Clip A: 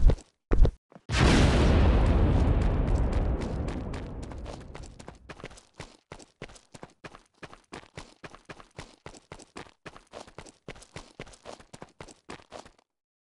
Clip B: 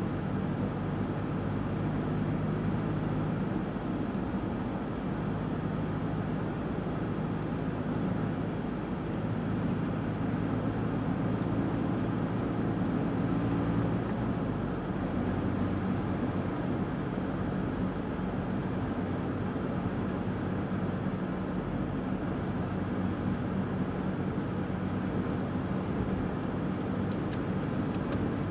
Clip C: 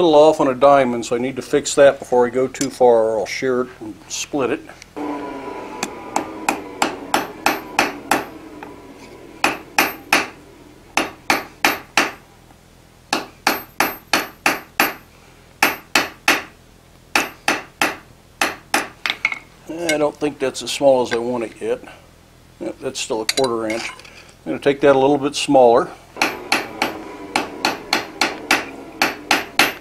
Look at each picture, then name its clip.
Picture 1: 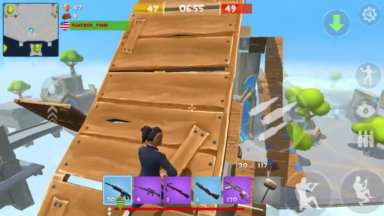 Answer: A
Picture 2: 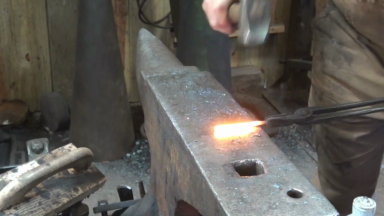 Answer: C